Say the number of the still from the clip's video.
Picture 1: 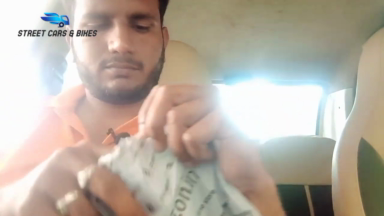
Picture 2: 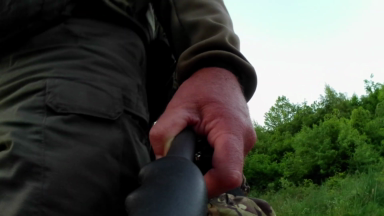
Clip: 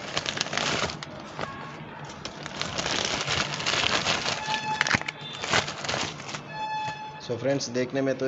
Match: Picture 1